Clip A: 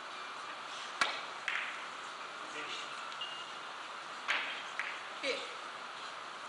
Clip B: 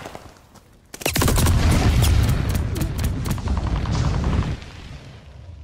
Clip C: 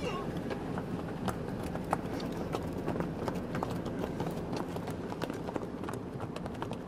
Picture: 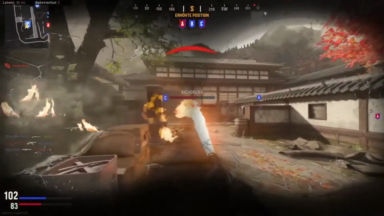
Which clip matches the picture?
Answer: B